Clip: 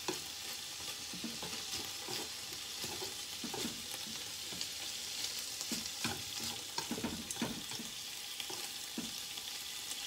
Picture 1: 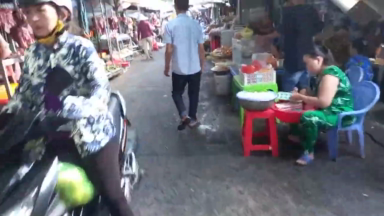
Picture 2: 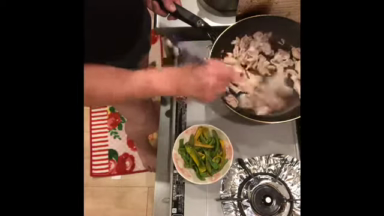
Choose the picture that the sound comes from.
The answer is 2